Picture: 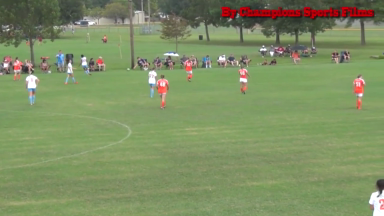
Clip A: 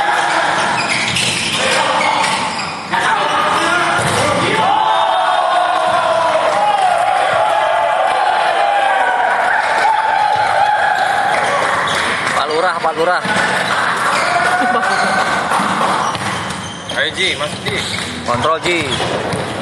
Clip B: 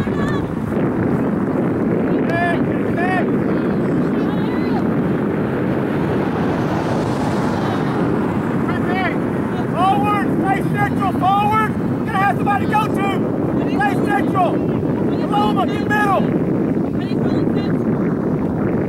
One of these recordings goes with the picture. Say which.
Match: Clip B